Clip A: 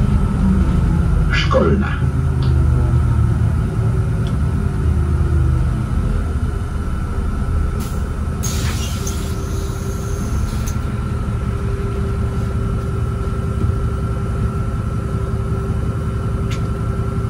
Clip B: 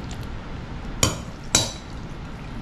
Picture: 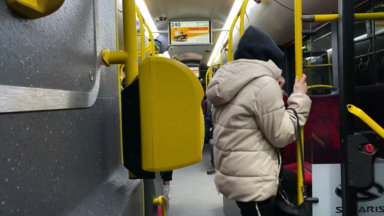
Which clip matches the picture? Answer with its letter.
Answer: A